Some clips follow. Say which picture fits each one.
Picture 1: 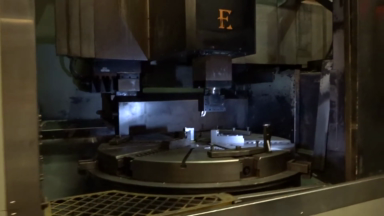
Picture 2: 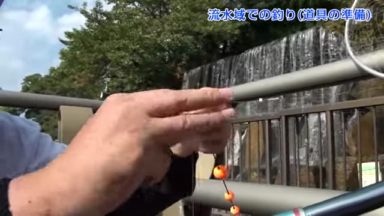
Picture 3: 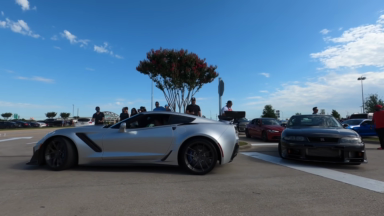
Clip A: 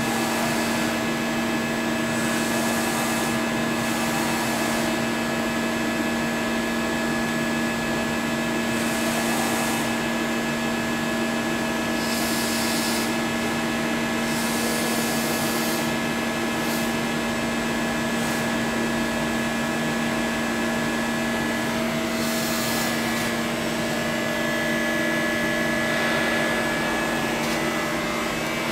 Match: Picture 1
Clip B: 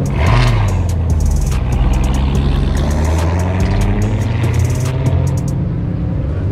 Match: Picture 3